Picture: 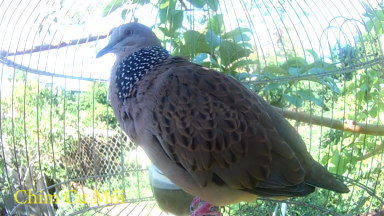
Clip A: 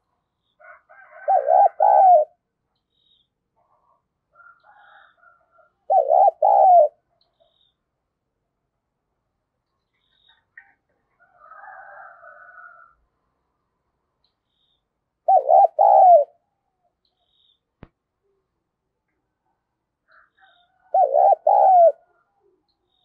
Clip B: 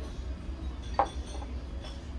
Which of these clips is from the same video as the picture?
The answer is A